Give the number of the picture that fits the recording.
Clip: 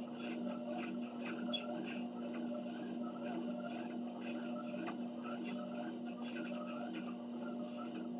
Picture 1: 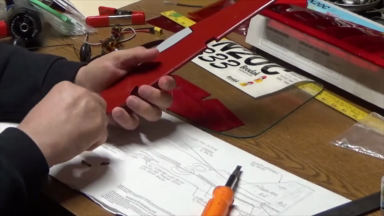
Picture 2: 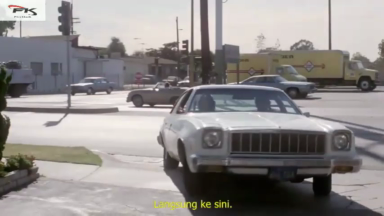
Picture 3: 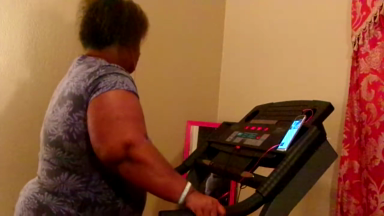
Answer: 3